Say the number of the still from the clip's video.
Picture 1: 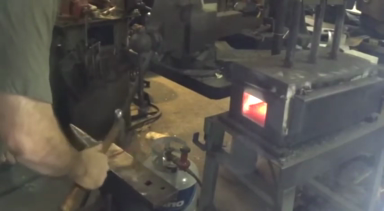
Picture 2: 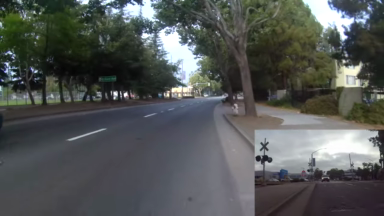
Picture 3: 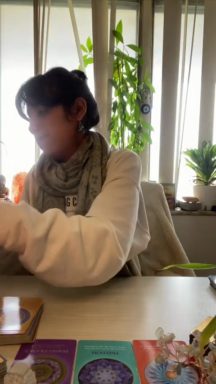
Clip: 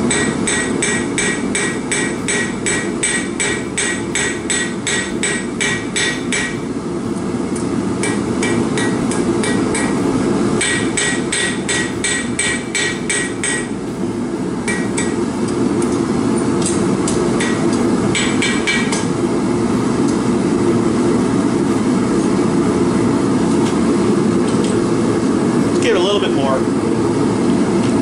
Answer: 1